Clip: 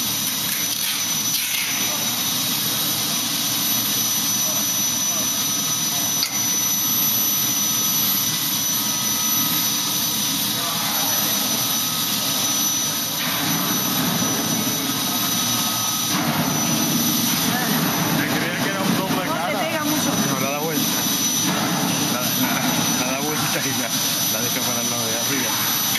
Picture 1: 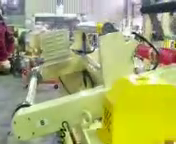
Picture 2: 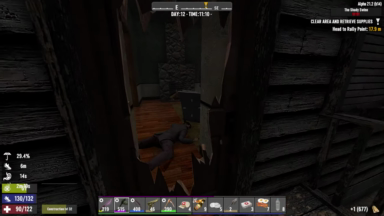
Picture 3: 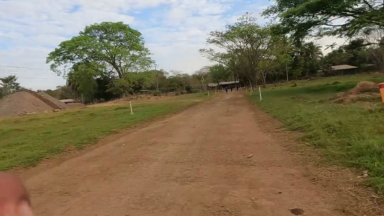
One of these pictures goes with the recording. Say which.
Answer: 1